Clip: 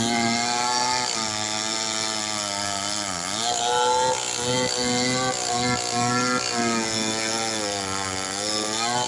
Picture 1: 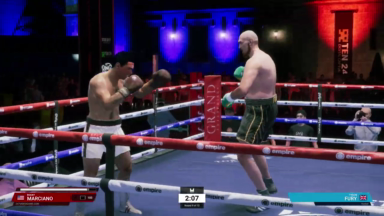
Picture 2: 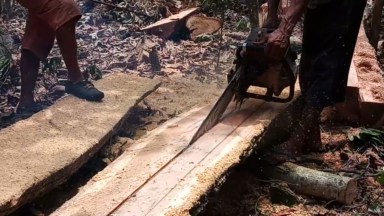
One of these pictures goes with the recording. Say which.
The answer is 2